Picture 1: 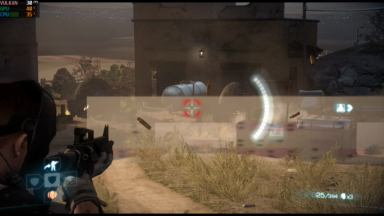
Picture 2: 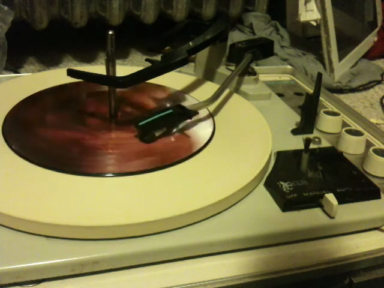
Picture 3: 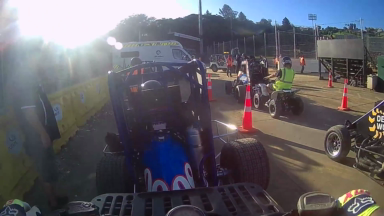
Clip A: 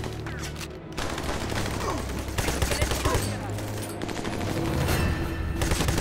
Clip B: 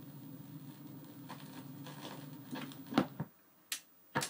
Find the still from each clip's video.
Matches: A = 1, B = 2